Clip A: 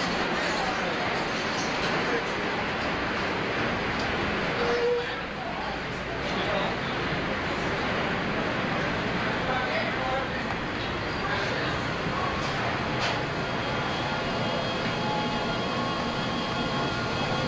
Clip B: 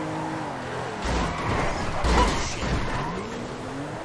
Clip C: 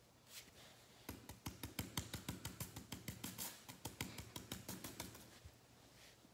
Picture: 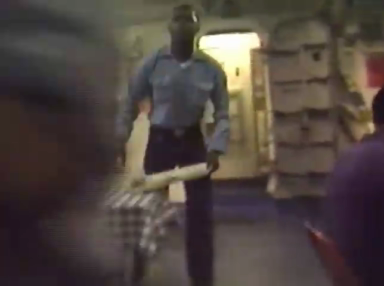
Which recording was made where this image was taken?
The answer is A